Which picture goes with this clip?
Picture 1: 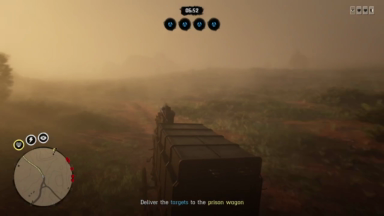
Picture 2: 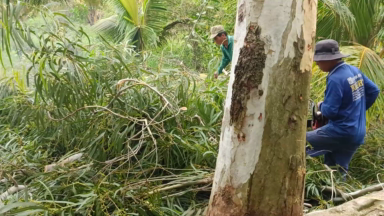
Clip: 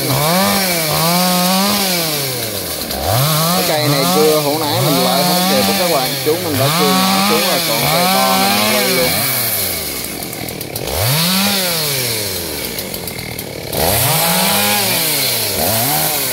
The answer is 2